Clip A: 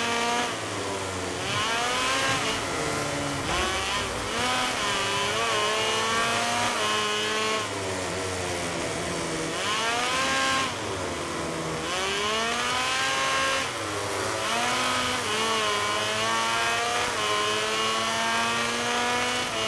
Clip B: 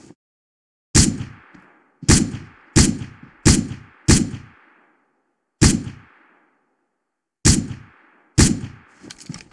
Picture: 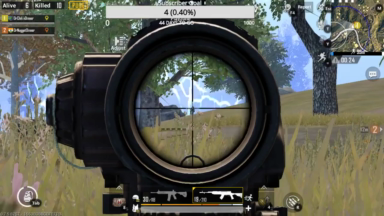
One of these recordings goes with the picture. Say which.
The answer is B